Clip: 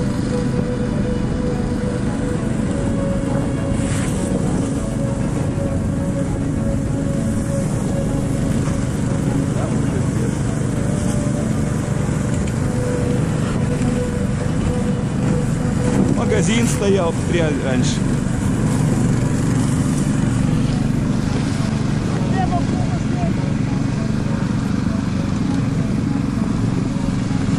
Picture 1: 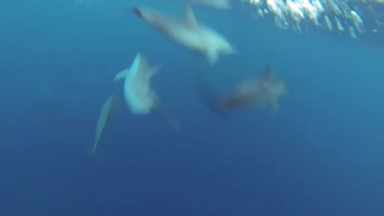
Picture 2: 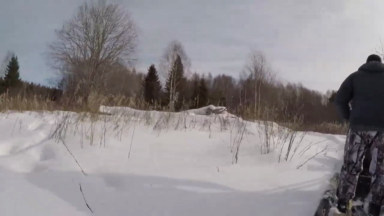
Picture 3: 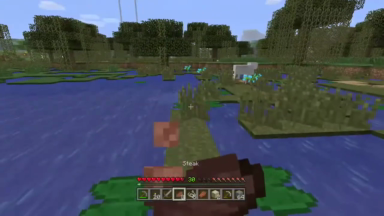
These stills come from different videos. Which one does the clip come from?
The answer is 2